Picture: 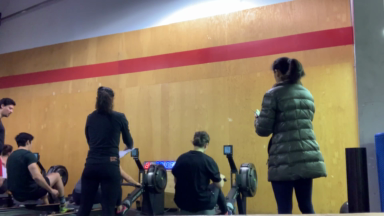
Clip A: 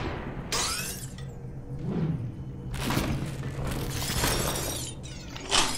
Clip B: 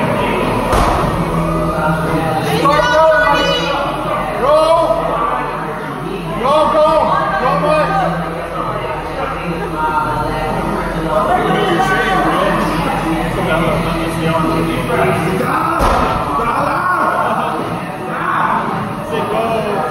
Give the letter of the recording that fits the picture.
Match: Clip B